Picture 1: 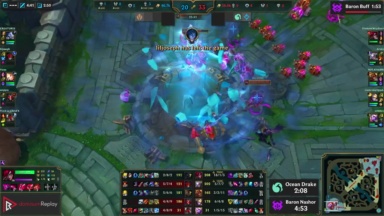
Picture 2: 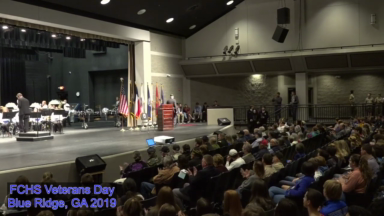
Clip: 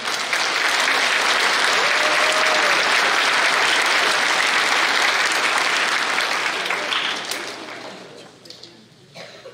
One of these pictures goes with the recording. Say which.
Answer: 2